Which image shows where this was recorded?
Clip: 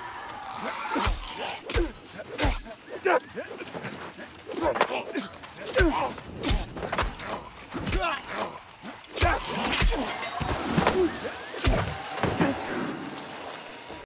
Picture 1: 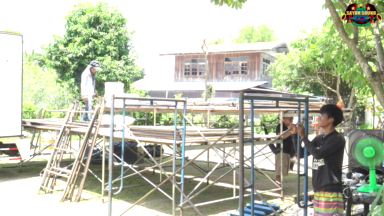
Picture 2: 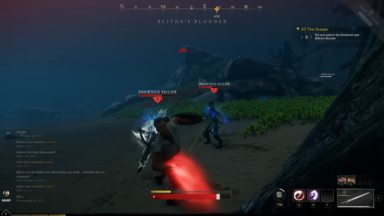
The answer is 2